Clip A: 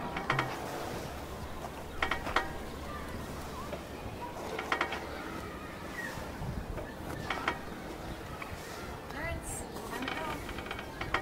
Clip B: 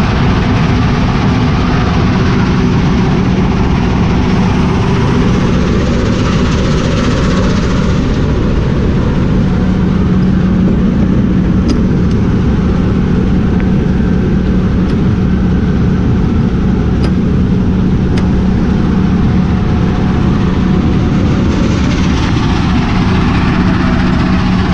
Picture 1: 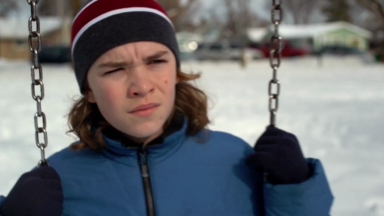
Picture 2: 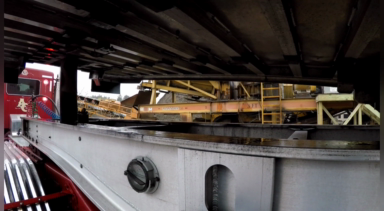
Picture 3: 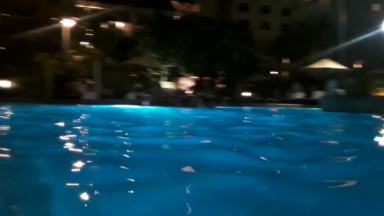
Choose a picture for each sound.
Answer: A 1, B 2